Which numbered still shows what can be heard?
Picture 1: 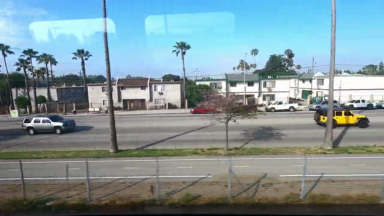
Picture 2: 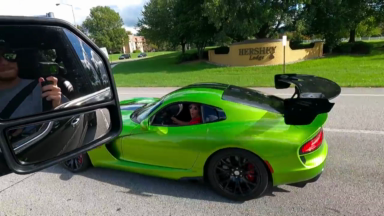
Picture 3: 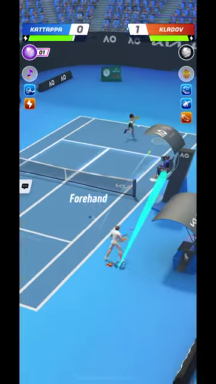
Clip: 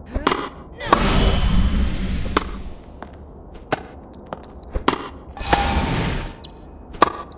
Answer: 3